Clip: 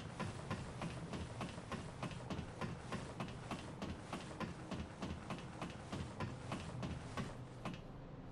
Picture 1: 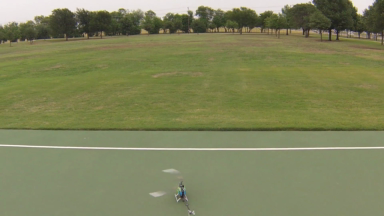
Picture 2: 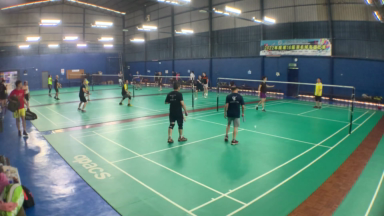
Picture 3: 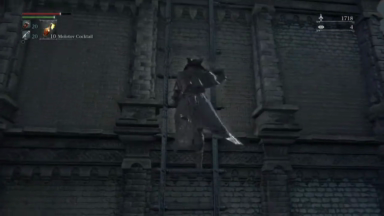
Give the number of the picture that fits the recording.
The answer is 3